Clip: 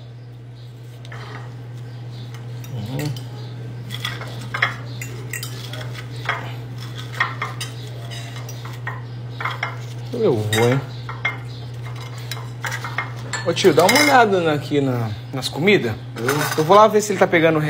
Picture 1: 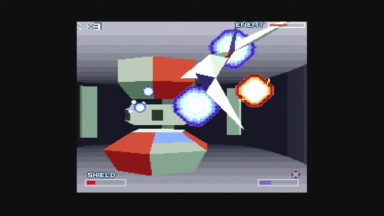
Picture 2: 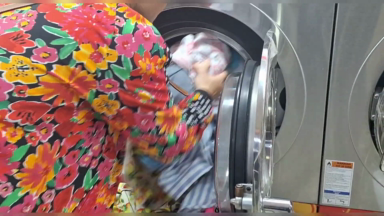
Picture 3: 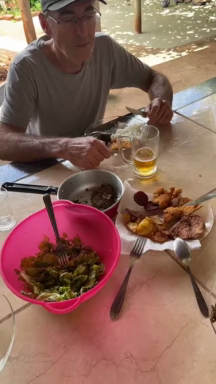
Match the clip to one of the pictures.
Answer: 3